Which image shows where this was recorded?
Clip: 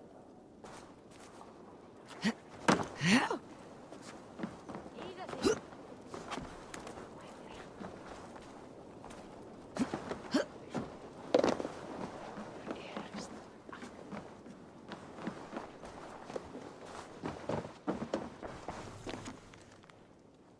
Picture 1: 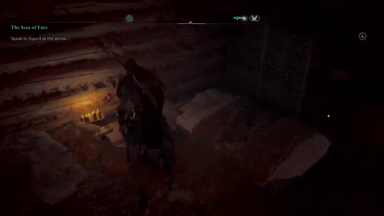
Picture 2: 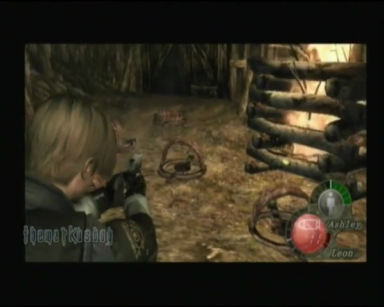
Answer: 1